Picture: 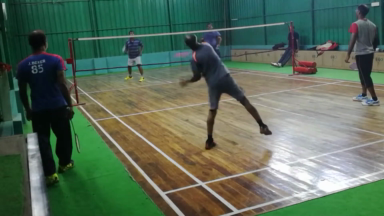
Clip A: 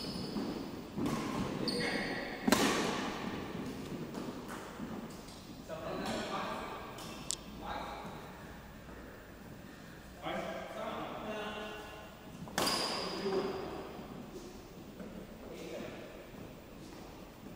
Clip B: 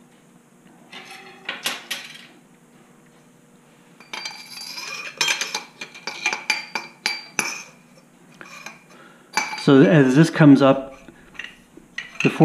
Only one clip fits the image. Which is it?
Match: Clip A